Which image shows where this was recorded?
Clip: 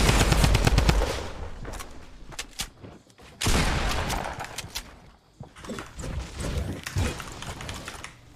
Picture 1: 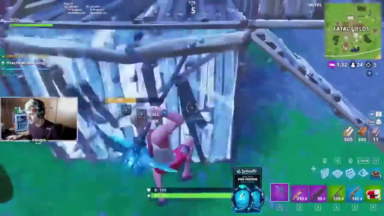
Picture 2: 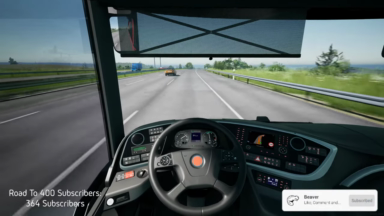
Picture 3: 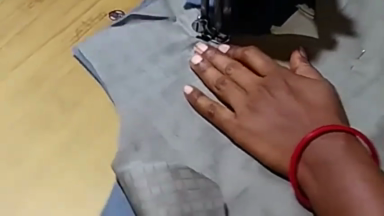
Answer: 1